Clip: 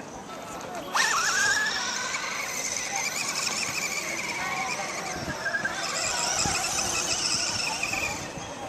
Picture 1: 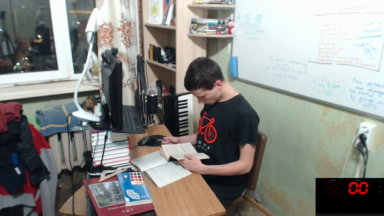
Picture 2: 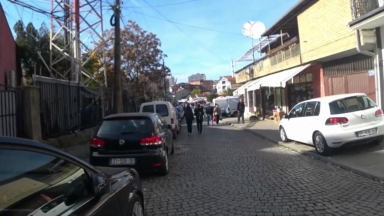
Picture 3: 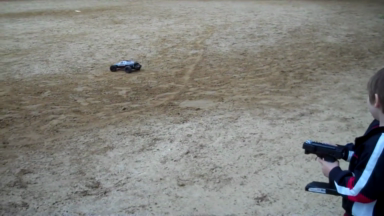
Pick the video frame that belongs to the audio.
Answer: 3